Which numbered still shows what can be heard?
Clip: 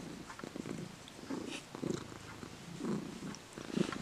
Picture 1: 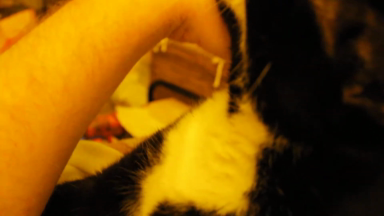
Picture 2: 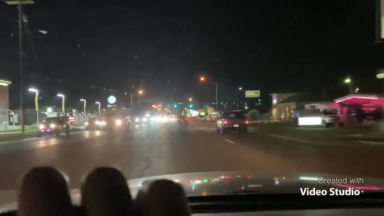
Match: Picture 1